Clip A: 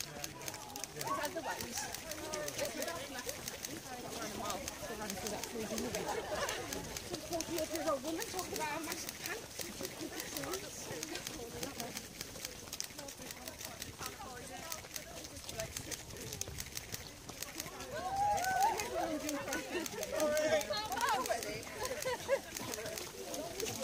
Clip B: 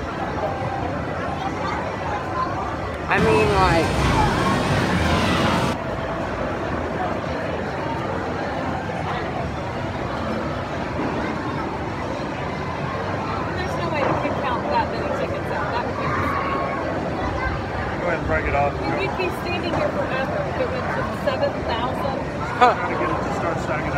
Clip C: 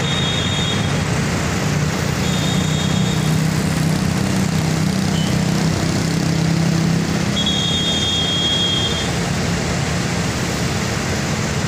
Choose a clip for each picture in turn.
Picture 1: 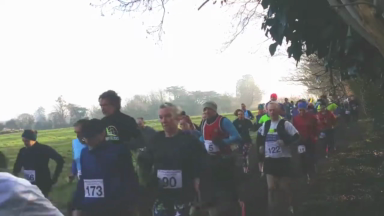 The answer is A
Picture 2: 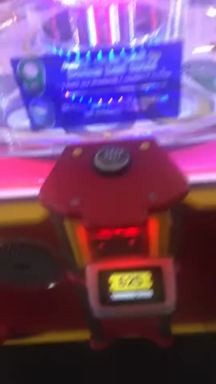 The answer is B